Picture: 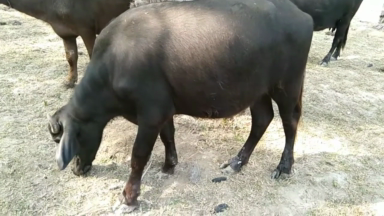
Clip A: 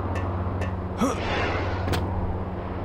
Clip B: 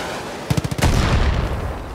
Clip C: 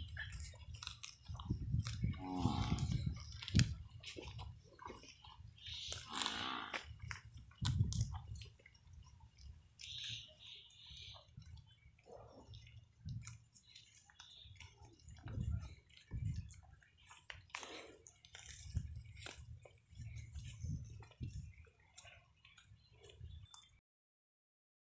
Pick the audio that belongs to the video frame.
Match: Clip C